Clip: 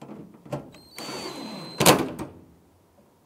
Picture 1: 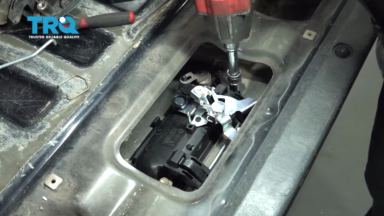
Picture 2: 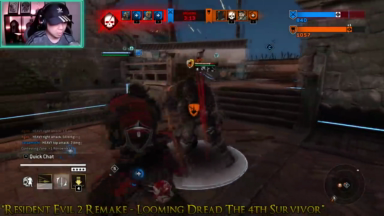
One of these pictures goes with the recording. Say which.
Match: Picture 1